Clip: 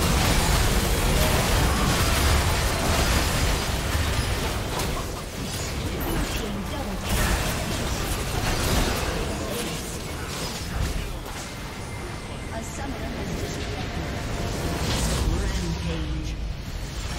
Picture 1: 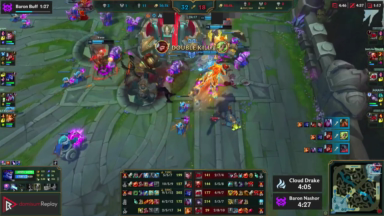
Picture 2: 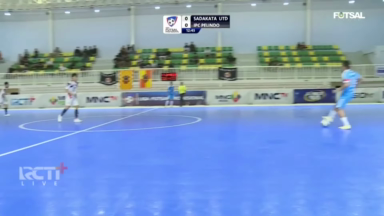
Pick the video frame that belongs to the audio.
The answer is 1